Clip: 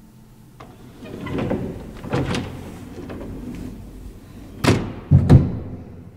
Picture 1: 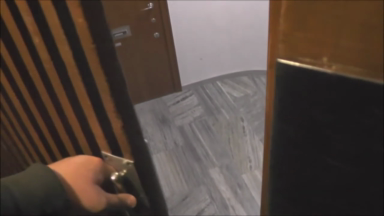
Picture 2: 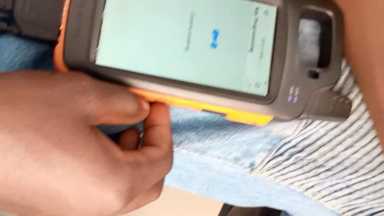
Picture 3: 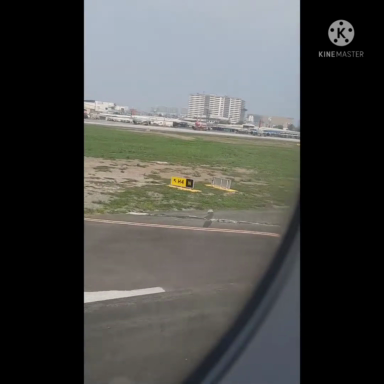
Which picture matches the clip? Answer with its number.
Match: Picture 1